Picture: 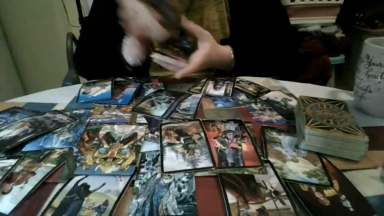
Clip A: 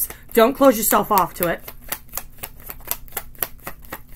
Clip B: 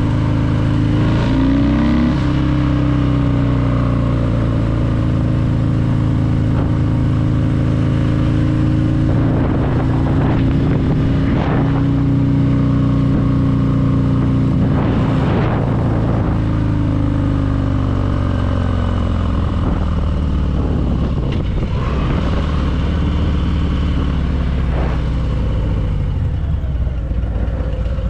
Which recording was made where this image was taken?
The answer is A